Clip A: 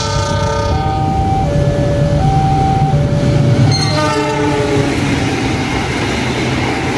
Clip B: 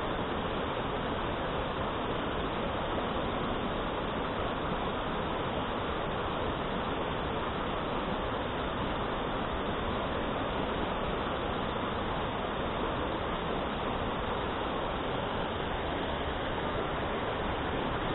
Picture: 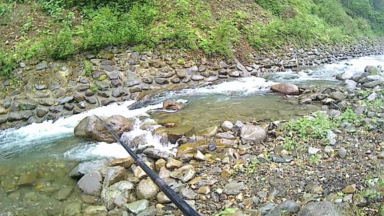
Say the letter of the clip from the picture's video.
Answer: B